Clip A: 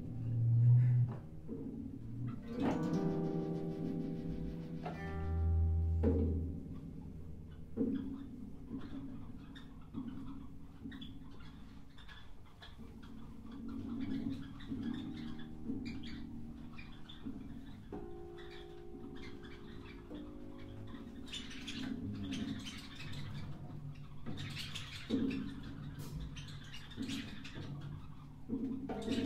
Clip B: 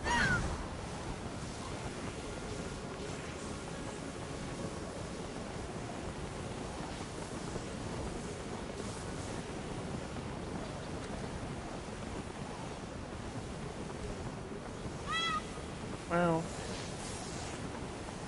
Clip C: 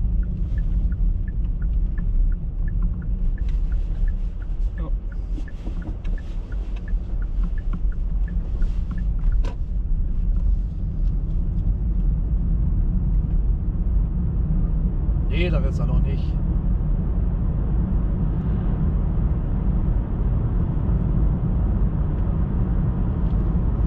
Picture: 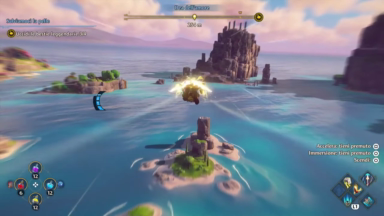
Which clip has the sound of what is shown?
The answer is B